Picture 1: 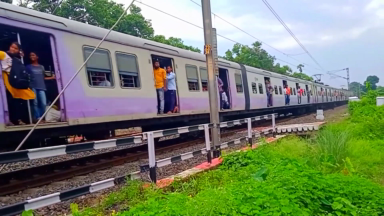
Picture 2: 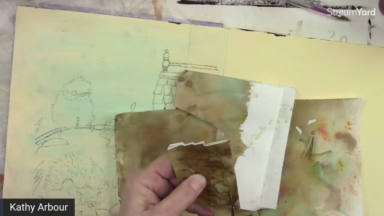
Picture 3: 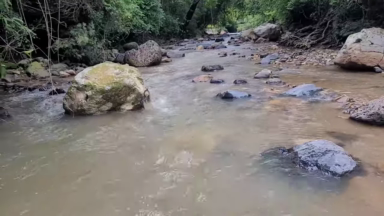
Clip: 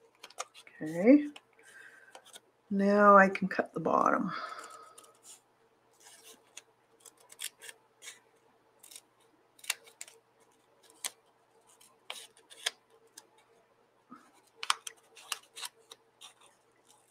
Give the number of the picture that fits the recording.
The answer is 2